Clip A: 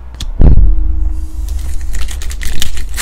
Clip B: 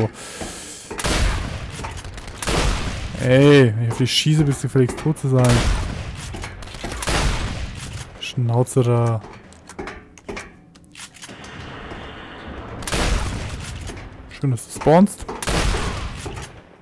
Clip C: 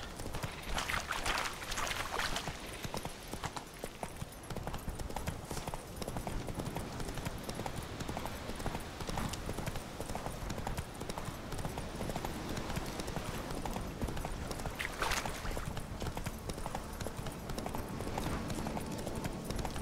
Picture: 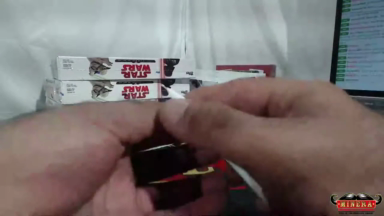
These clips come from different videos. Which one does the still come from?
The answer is A